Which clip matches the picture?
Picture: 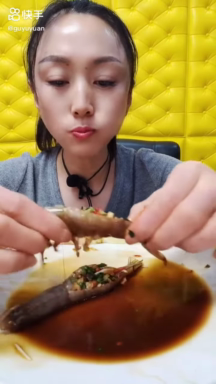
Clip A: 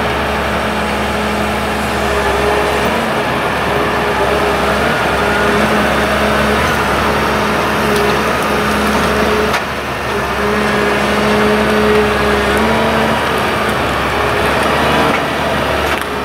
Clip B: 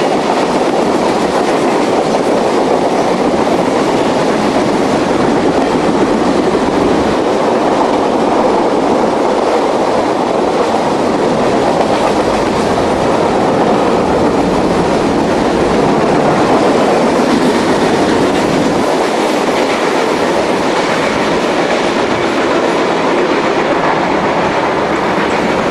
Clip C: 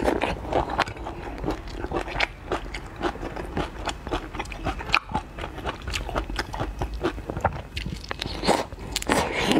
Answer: C